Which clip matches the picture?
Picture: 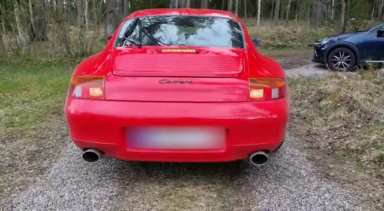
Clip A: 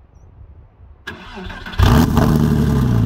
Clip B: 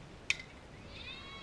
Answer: A